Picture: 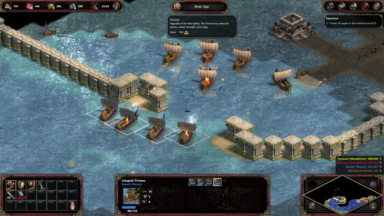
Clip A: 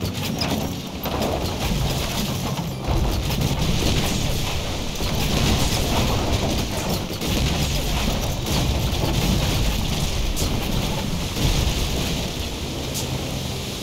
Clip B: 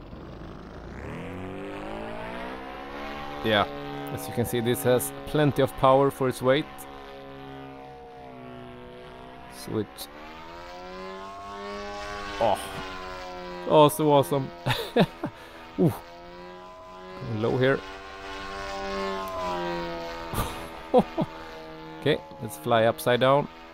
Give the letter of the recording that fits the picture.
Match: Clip A